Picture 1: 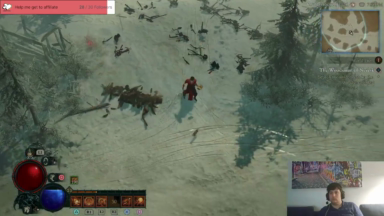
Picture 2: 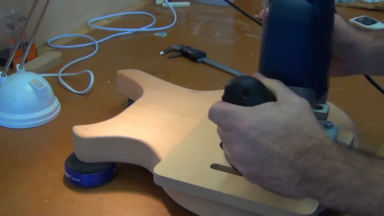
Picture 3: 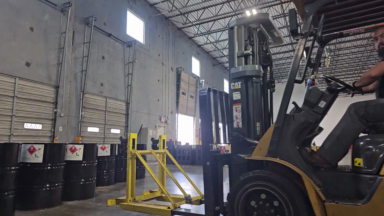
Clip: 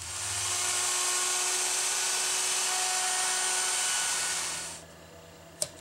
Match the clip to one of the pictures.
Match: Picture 2